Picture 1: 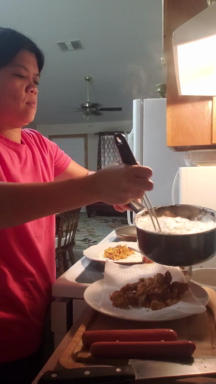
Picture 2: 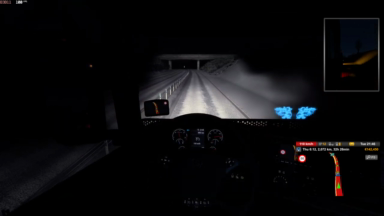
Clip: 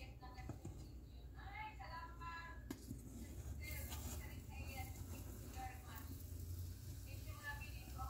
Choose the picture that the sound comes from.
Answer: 1